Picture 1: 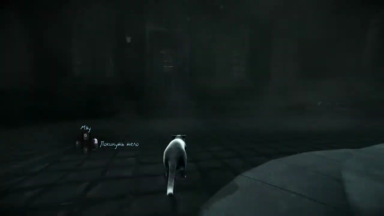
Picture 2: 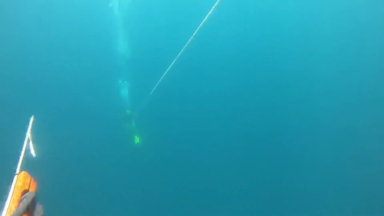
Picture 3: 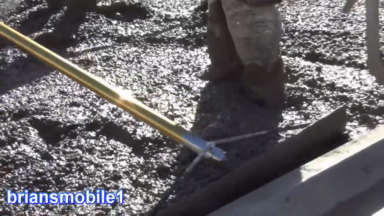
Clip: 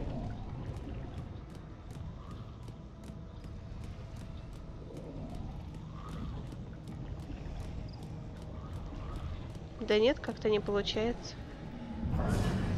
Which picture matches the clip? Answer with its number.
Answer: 1